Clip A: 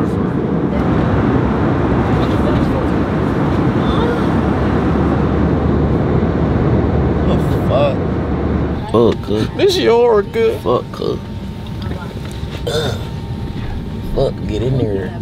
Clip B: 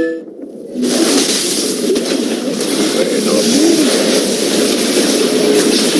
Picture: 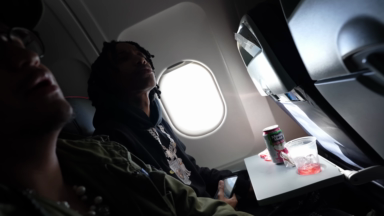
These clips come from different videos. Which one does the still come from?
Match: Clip A